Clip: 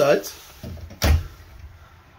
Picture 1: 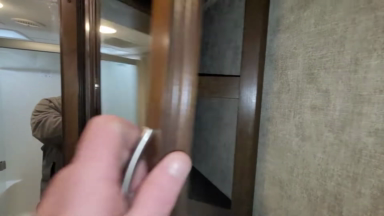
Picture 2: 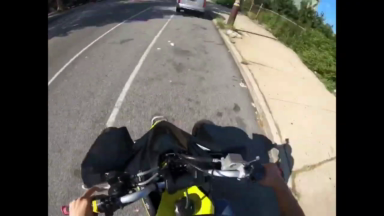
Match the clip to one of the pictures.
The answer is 1